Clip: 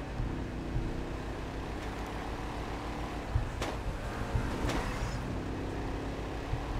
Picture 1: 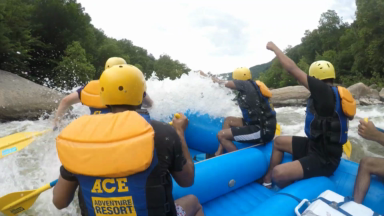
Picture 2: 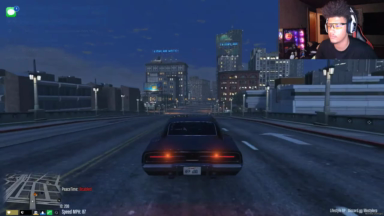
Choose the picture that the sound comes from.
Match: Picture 2